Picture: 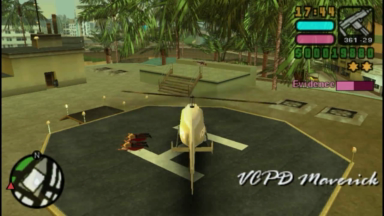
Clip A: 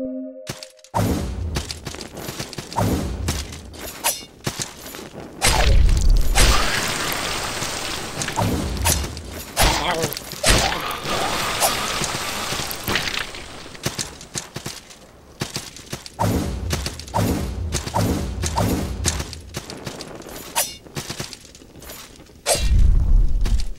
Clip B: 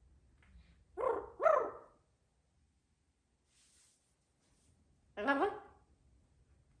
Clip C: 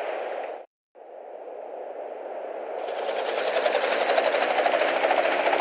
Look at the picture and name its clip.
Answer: C